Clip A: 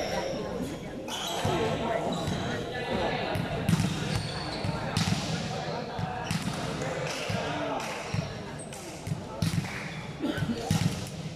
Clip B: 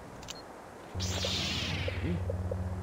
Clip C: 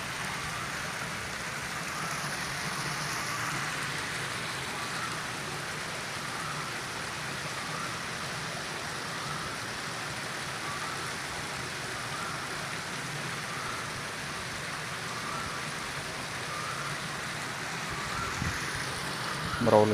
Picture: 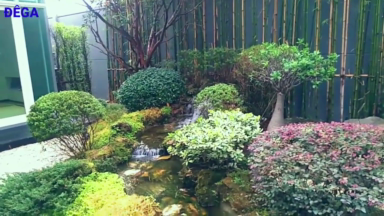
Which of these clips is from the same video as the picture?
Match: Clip C